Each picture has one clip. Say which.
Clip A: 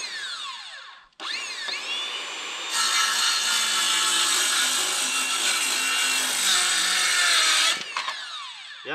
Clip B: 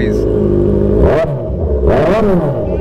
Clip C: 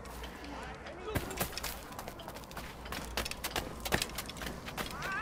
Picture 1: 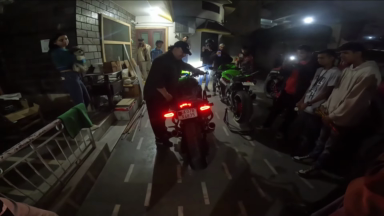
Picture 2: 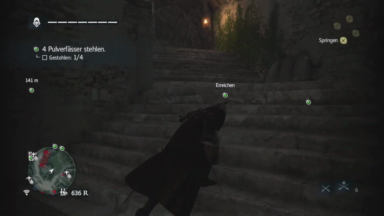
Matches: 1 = B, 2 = C